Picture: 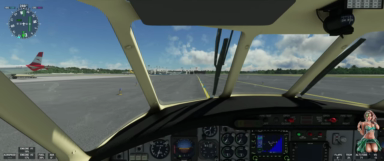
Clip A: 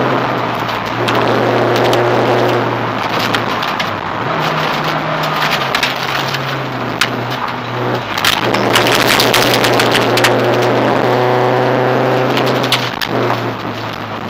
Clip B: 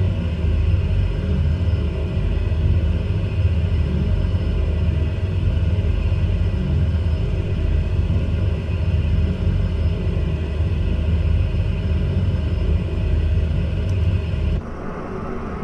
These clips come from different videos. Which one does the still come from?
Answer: B